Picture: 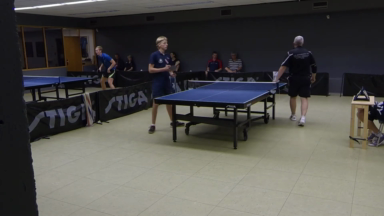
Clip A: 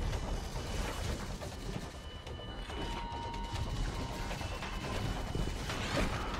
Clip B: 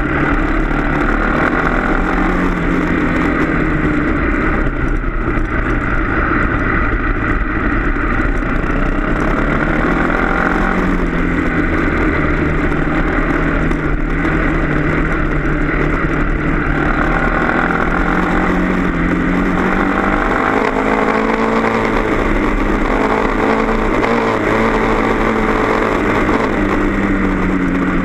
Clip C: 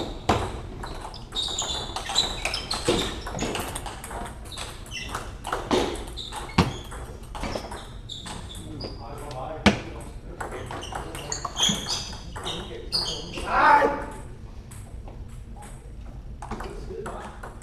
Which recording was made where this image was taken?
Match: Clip C